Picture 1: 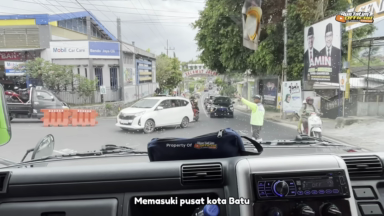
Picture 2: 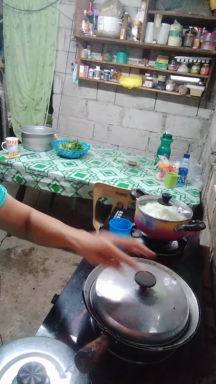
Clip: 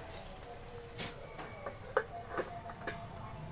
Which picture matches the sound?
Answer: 2